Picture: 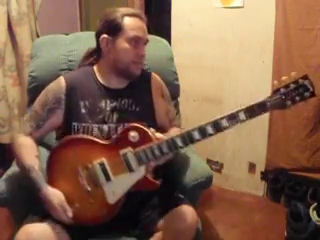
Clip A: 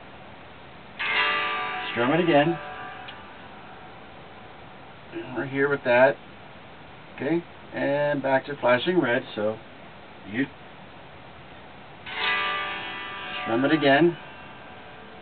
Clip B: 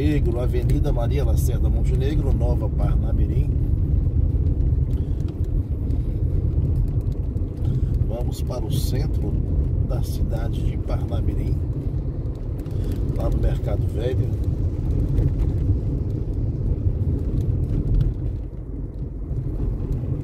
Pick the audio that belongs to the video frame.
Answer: A